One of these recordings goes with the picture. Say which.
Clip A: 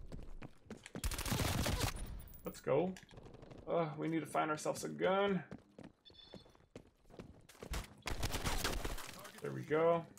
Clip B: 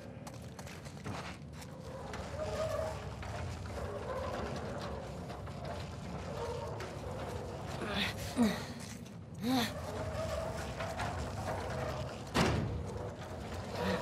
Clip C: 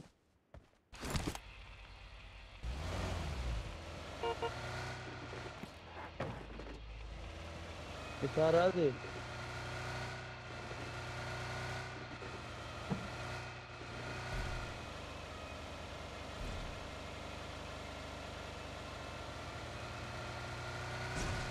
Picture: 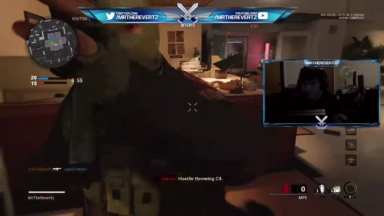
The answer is A